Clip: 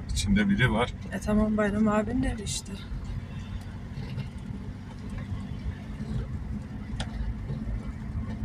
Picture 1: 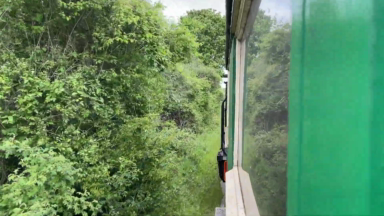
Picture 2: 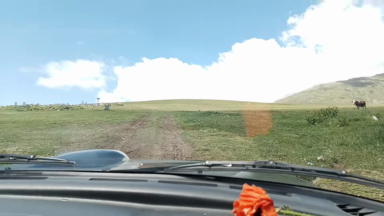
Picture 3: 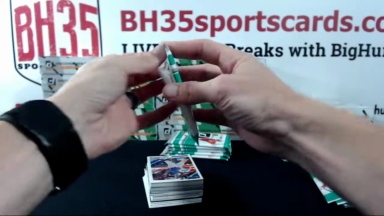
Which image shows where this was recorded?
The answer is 2